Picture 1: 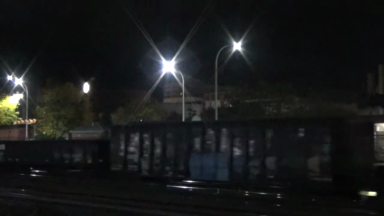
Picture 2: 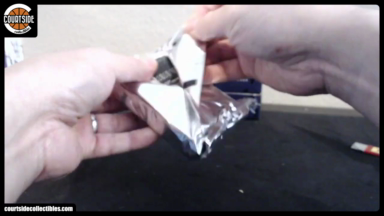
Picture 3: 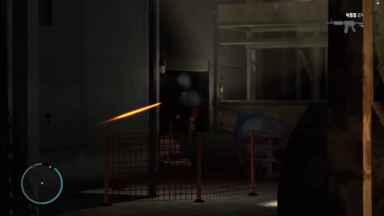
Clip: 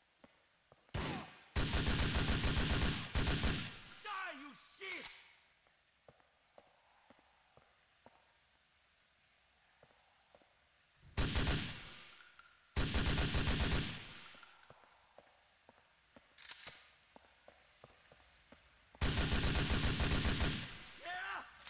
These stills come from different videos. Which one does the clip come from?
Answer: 3